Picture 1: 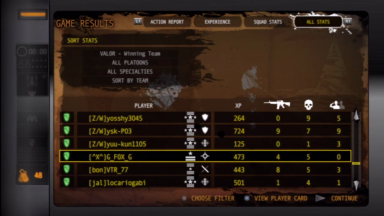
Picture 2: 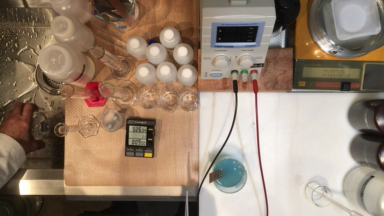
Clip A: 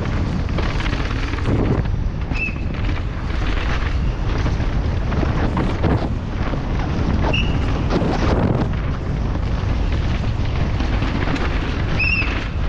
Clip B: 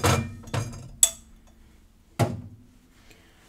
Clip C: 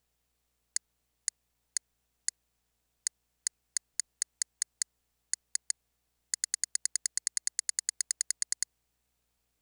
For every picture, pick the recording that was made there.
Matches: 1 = C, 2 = B